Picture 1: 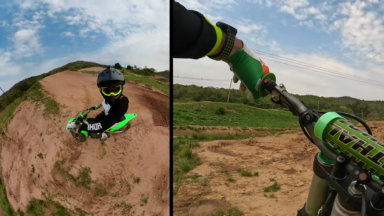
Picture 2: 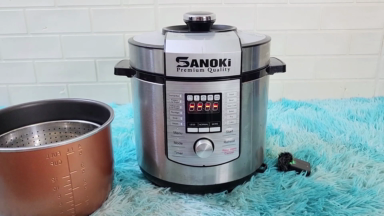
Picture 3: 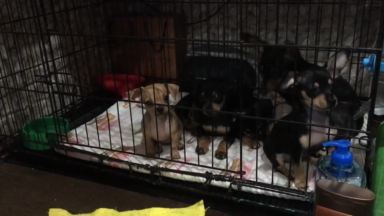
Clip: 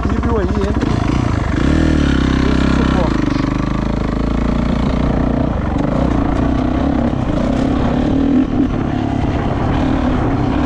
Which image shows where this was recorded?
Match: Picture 1